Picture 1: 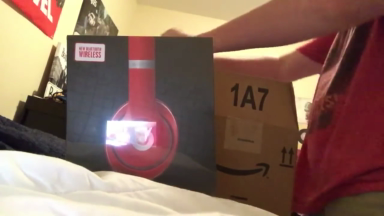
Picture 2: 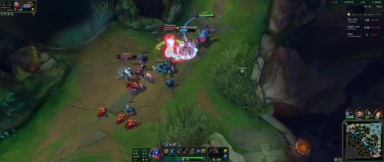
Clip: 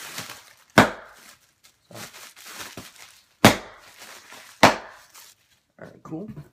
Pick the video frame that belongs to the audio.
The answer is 1